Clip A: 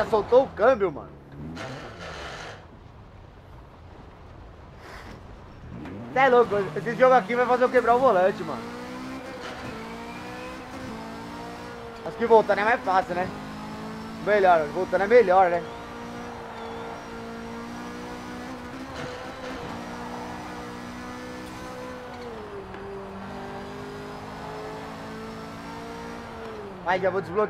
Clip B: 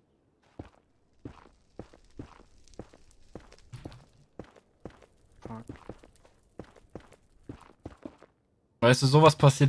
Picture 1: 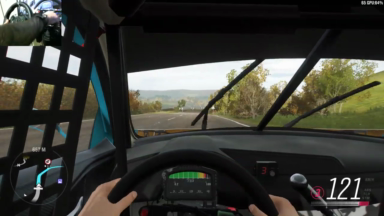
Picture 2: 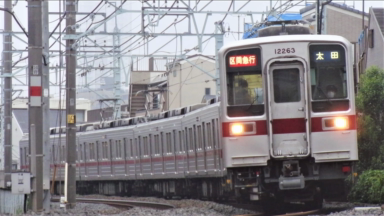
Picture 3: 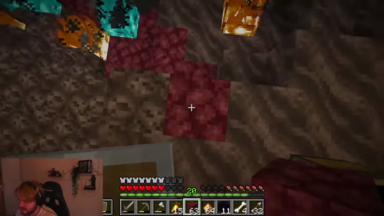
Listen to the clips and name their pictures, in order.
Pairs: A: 1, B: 3